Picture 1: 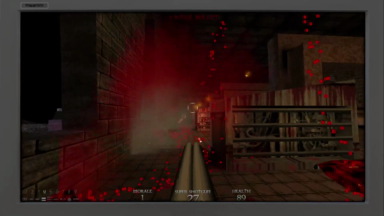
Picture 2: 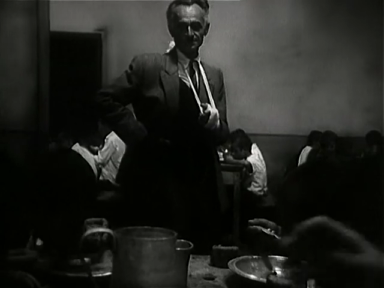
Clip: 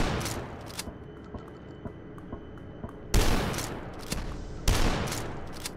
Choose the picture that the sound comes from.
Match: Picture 1